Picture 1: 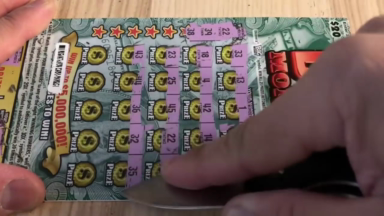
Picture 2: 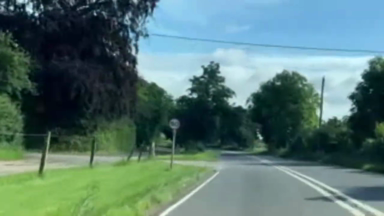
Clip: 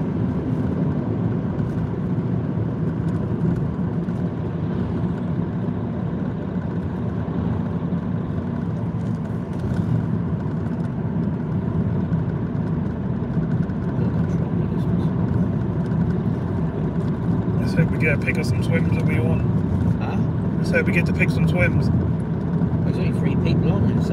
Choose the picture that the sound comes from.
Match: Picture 2